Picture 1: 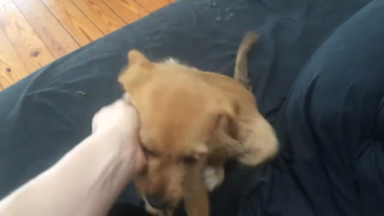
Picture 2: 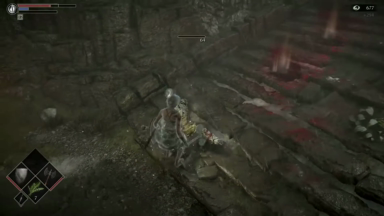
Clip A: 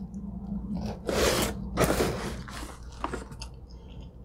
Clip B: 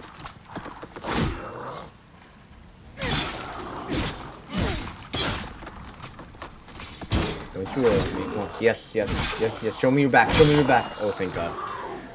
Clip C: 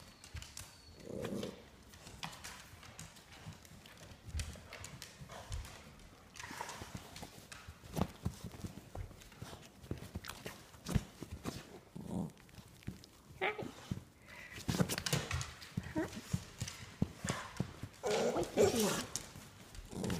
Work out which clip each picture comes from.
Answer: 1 C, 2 B